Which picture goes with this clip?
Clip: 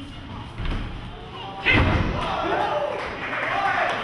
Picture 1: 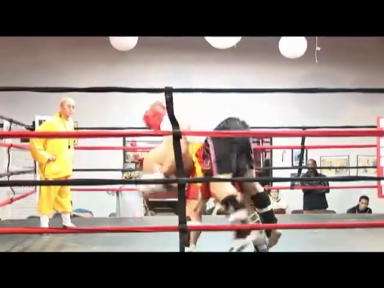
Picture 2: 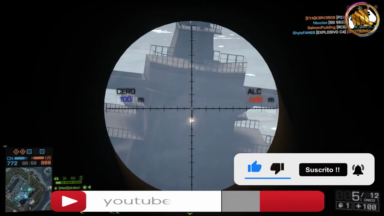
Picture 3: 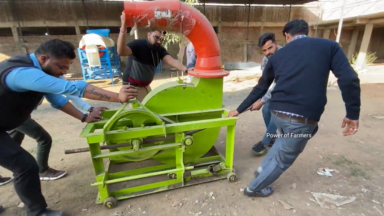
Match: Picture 1